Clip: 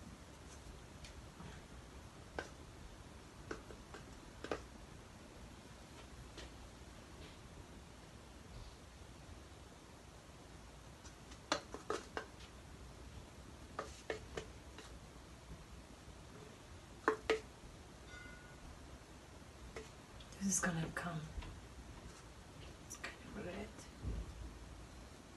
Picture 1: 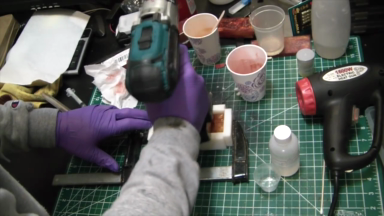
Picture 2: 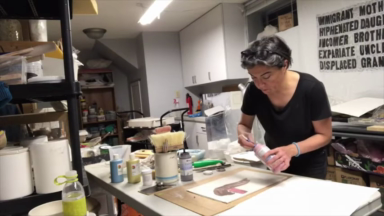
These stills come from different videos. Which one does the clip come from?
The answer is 2